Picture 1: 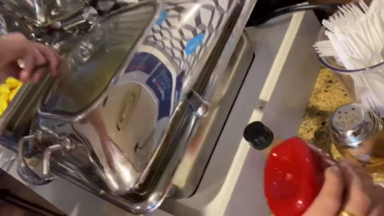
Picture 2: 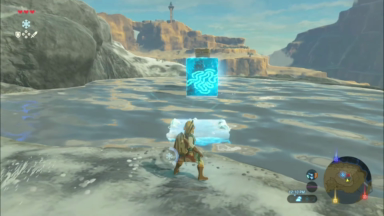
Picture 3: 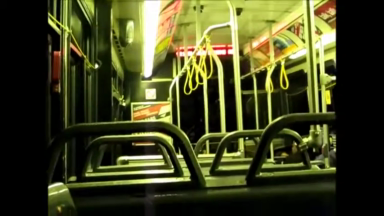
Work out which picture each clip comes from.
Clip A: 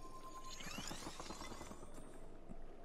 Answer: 2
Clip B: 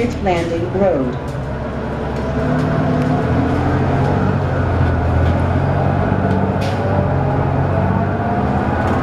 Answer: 3